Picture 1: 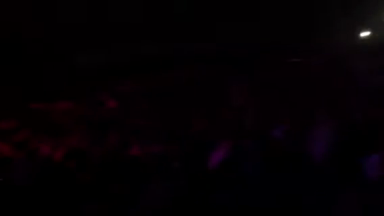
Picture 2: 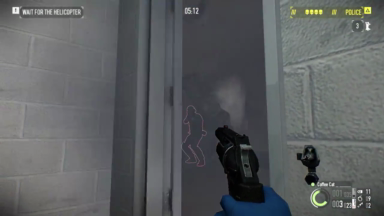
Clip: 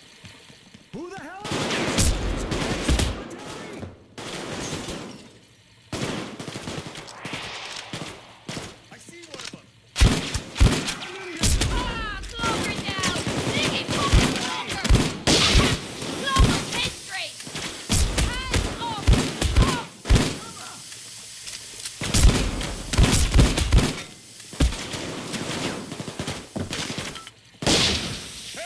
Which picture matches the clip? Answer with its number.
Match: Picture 2